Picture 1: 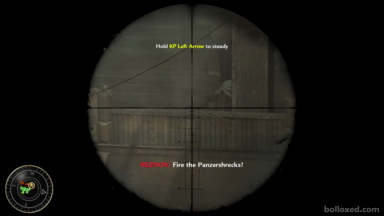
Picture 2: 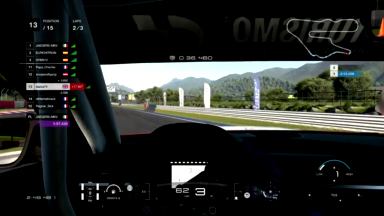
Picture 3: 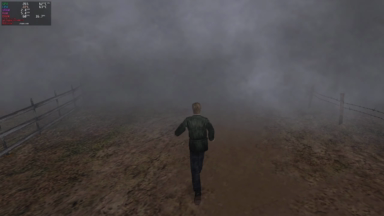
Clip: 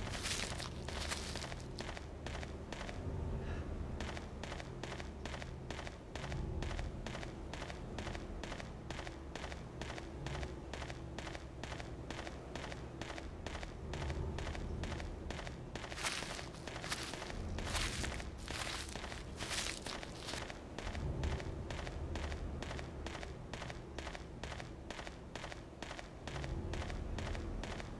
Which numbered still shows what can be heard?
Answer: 3